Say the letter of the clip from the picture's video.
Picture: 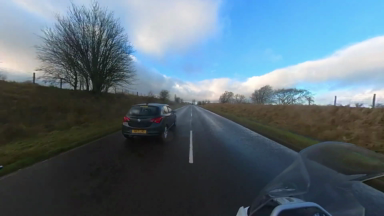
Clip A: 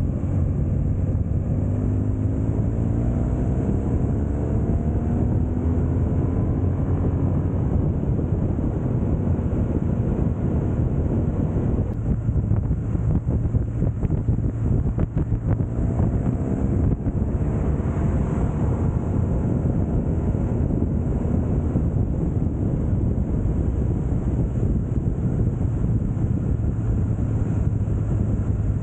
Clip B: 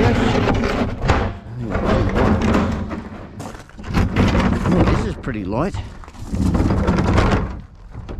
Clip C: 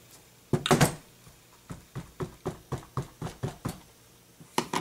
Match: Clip A